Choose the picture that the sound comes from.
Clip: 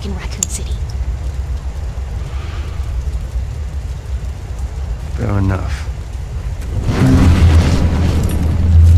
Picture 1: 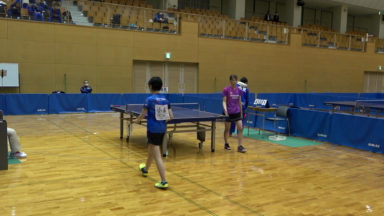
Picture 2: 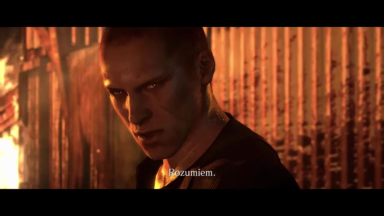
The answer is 2